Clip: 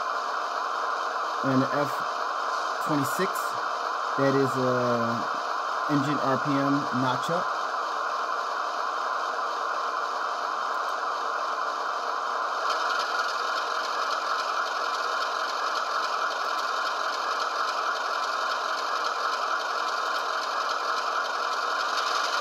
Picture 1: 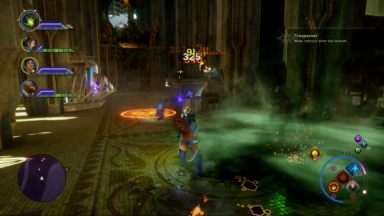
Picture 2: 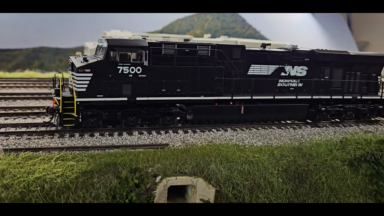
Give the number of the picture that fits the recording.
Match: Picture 2